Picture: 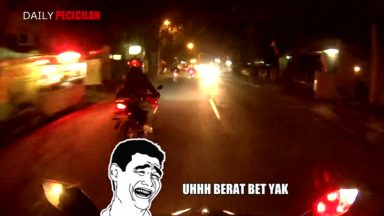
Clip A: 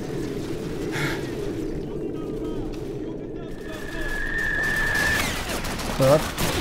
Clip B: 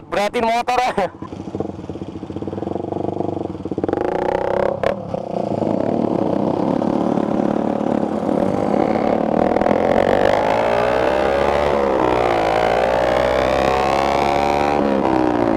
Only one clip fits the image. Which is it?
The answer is B